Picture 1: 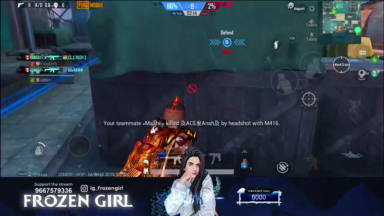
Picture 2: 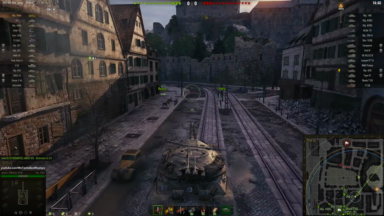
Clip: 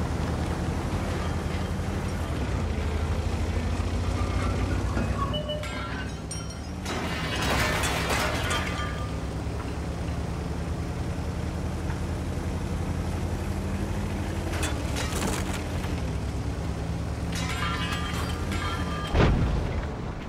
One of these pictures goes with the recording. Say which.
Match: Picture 2